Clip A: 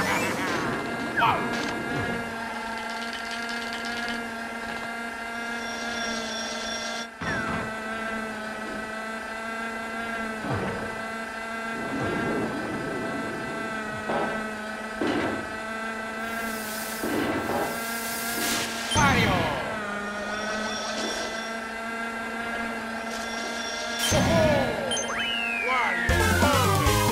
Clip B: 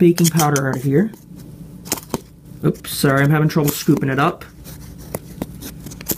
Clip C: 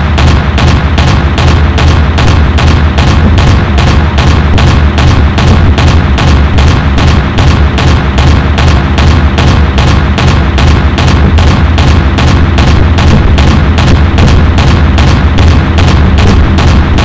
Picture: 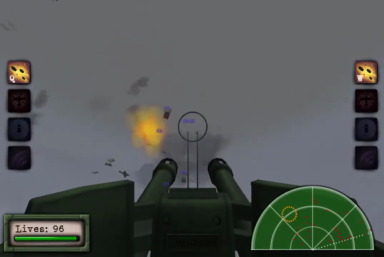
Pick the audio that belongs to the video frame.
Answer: C